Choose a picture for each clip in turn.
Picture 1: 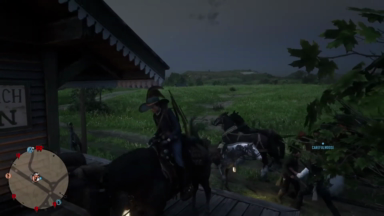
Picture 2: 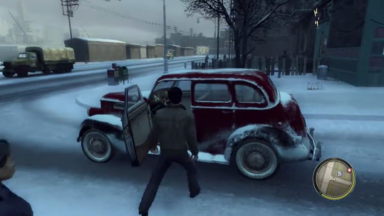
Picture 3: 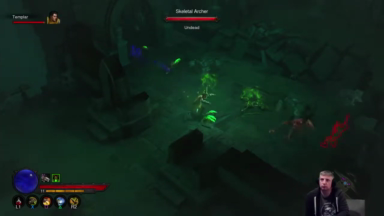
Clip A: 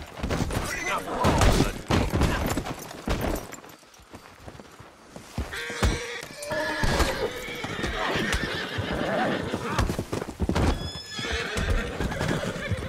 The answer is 1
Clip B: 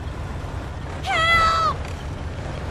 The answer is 2